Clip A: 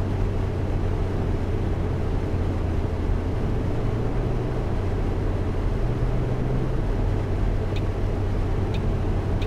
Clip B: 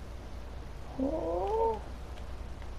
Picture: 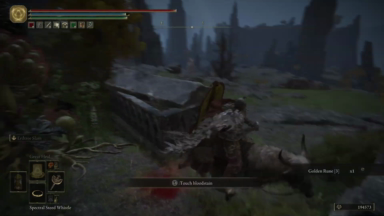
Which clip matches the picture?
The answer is B